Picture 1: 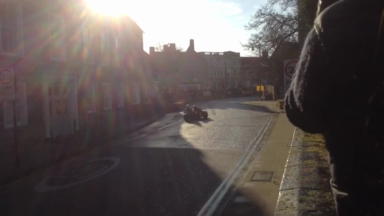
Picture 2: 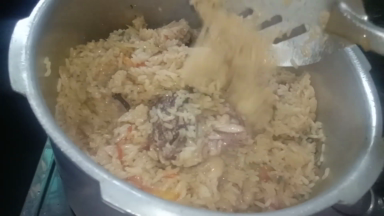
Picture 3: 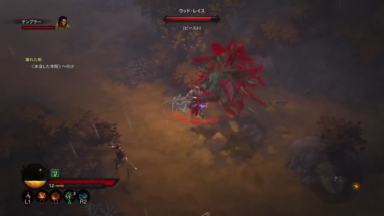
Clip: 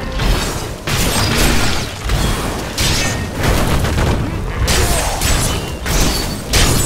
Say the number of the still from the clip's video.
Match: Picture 3